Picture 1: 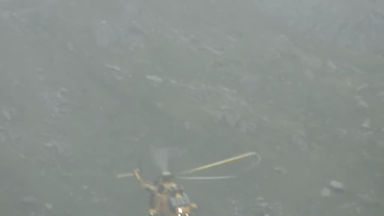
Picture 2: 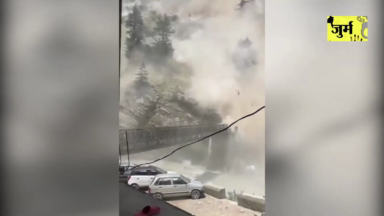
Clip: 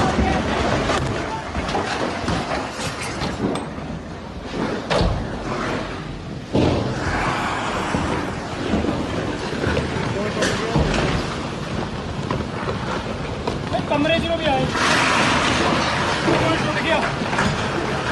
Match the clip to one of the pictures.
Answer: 2